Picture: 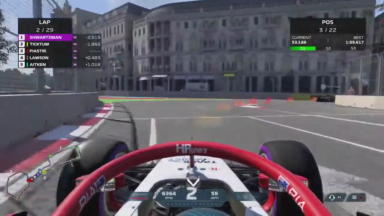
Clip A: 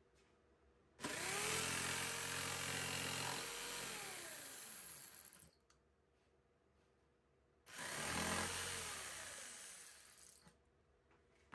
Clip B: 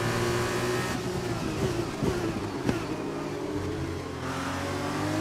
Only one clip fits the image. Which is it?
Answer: B